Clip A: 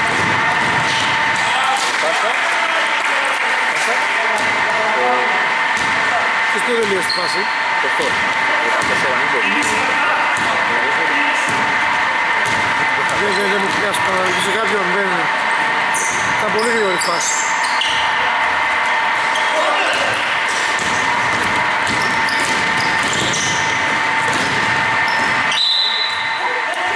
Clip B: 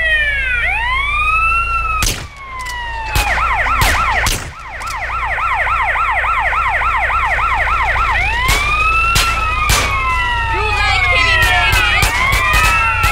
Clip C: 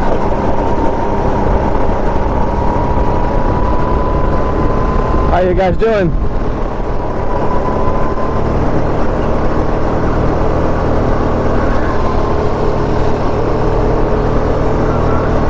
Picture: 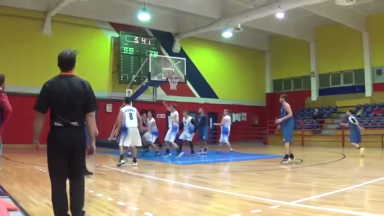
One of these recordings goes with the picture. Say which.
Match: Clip A